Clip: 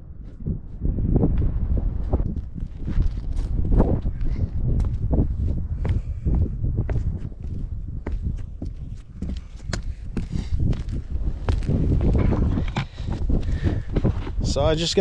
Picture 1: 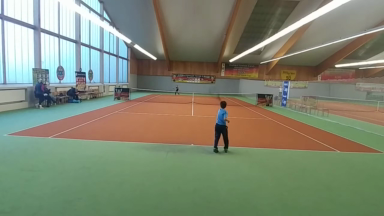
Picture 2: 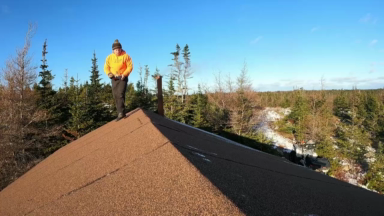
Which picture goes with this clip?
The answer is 2